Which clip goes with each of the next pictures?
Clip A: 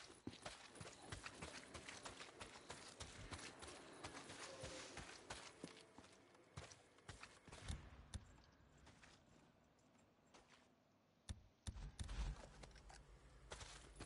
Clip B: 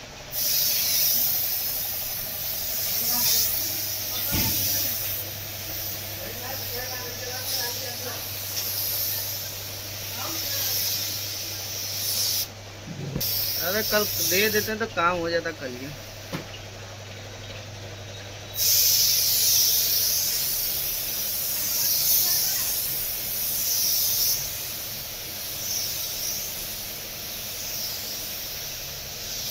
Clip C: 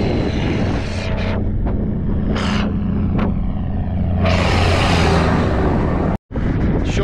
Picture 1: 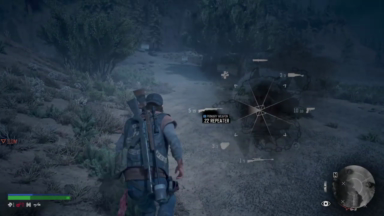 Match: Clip A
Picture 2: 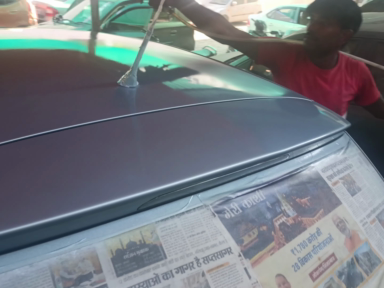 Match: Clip B